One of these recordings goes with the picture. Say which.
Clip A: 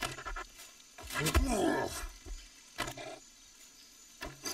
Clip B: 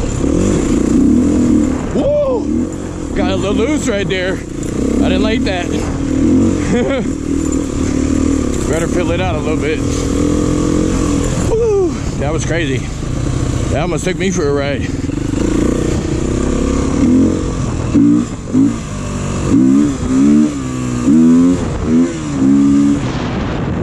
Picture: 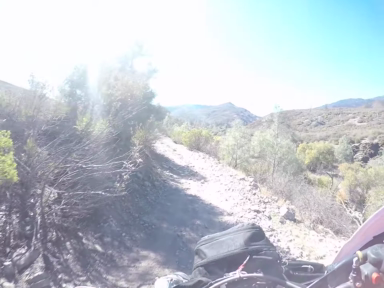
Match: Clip B